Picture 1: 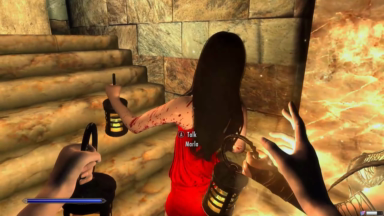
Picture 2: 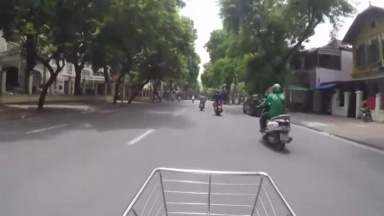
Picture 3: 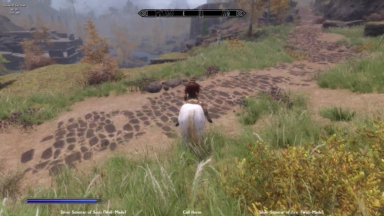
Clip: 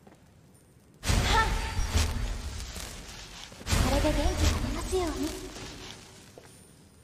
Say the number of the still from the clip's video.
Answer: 1